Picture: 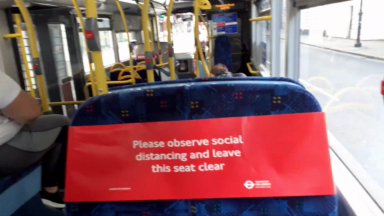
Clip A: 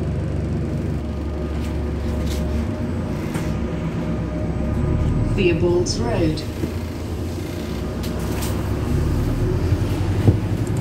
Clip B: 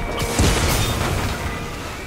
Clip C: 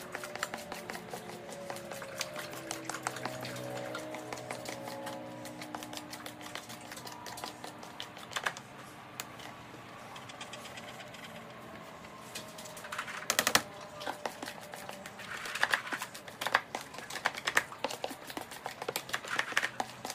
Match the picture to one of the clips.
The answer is A